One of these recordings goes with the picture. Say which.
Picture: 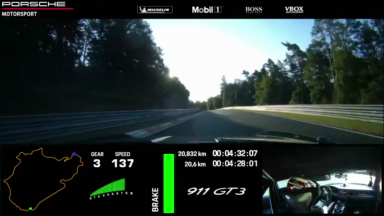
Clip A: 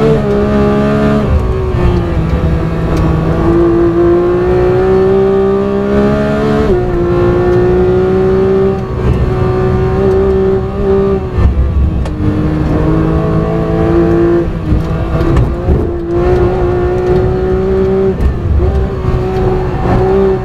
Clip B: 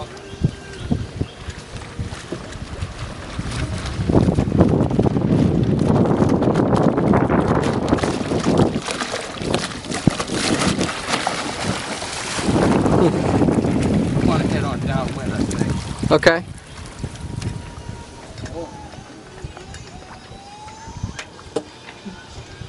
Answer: A